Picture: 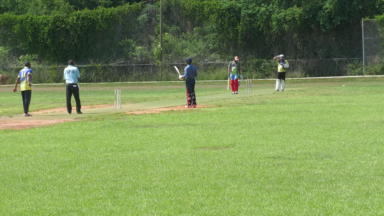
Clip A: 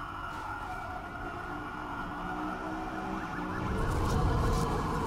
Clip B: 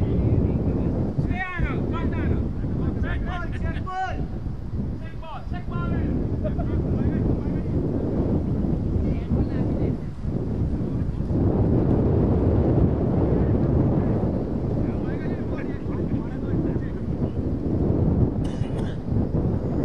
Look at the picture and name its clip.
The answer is B